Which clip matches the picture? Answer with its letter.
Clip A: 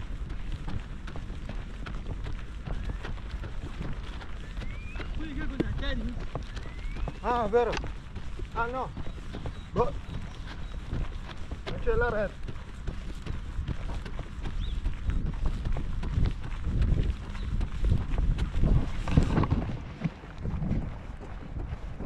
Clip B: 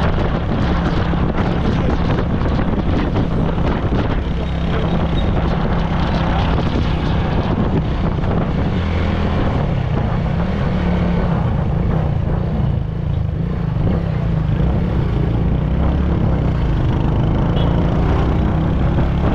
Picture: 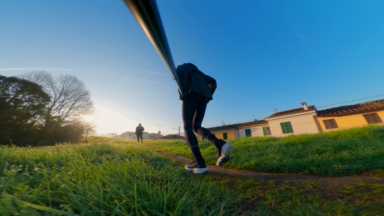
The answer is A